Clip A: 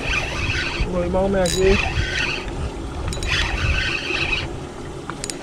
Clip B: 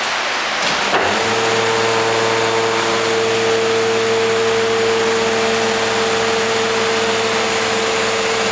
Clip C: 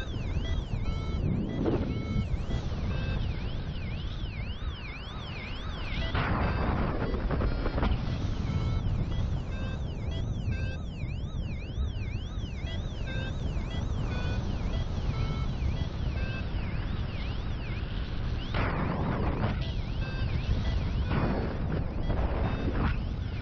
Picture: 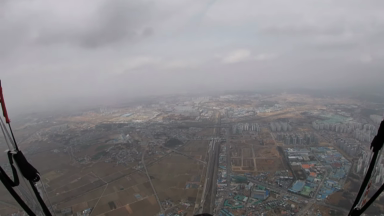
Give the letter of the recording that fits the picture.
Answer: C